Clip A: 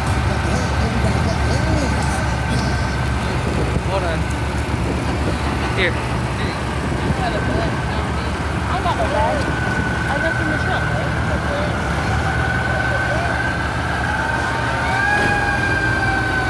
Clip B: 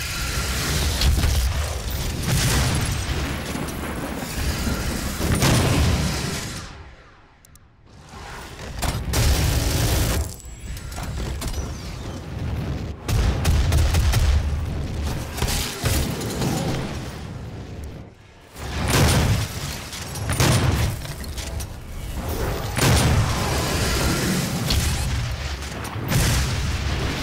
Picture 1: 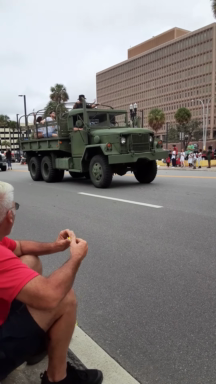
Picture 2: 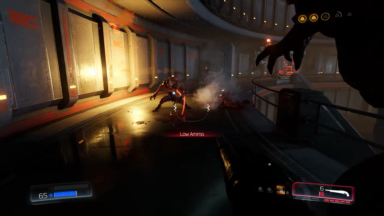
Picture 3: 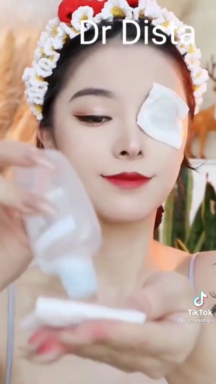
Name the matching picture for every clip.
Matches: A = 1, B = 2